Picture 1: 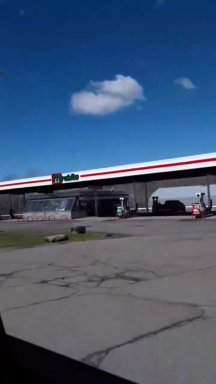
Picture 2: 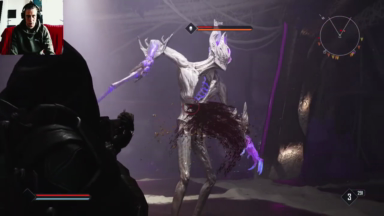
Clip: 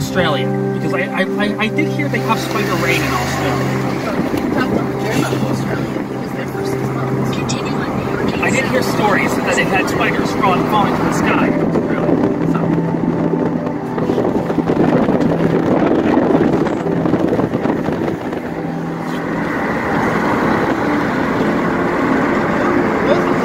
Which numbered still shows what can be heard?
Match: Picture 1